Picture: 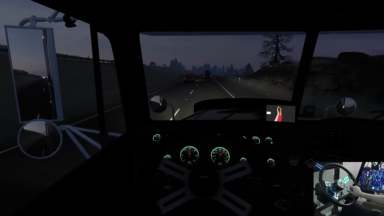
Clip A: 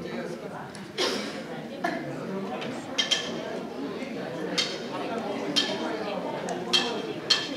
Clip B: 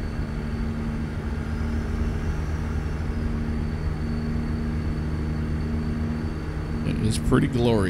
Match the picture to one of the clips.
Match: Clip B